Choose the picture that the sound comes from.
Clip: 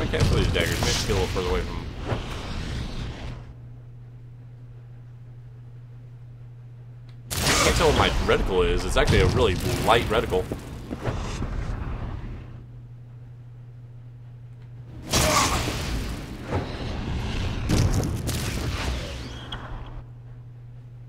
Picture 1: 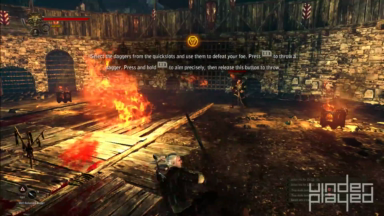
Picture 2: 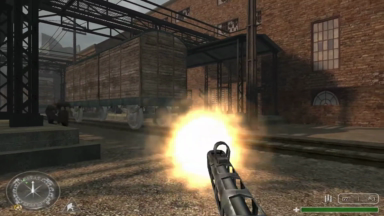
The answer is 1